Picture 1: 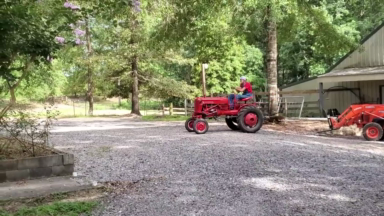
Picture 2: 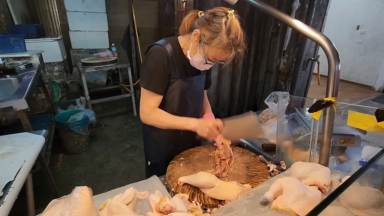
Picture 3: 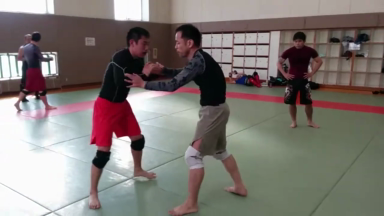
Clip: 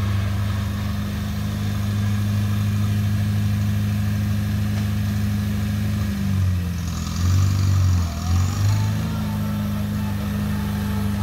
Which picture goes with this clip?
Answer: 1